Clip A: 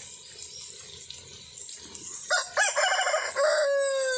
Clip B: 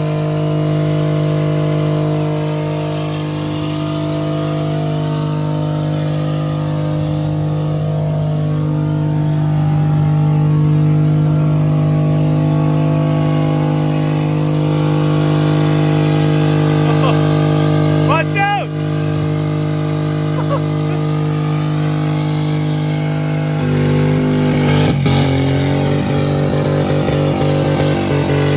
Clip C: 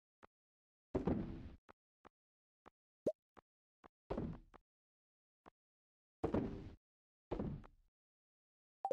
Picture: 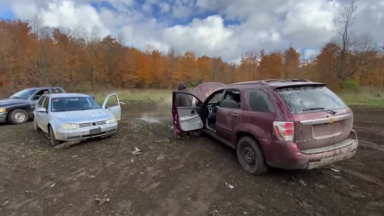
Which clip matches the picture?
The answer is B